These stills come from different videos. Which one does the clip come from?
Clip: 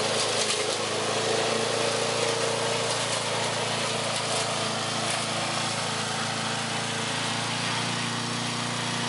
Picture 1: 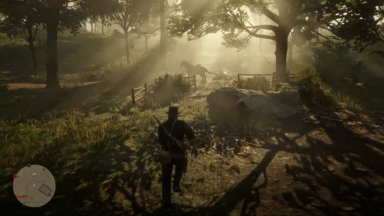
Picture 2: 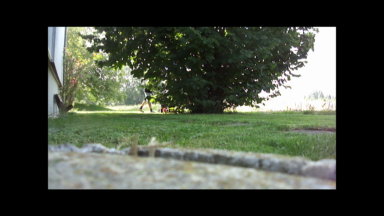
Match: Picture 2